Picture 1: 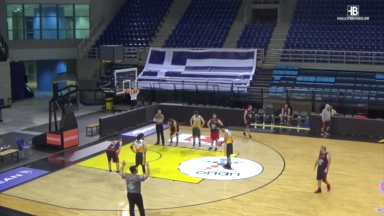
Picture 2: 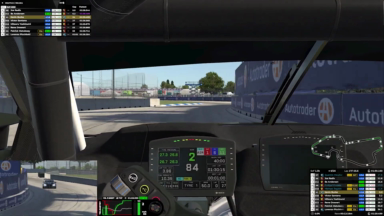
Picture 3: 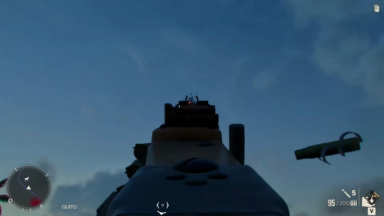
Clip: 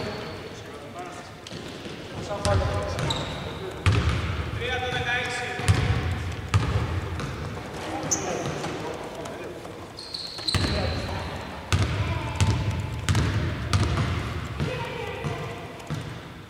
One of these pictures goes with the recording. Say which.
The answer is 1